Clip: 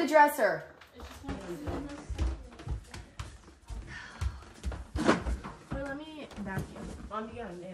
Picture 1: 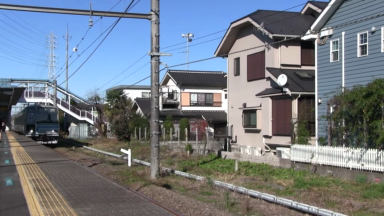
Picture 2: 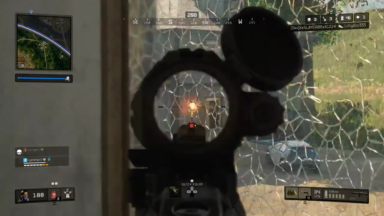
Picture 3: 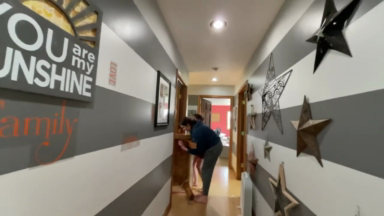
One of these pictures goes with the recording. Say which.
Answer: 3